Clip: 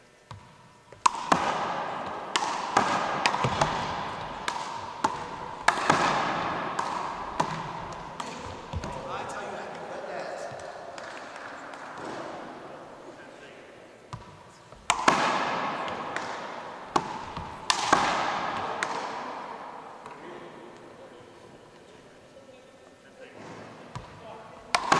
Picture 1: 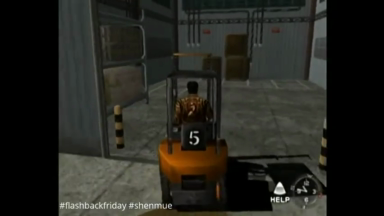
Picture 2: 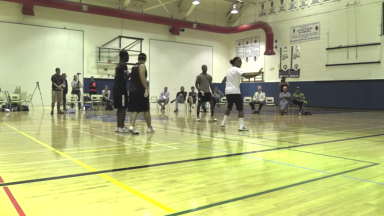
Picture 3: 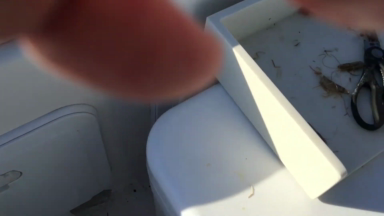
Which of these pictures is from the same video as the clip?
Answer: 2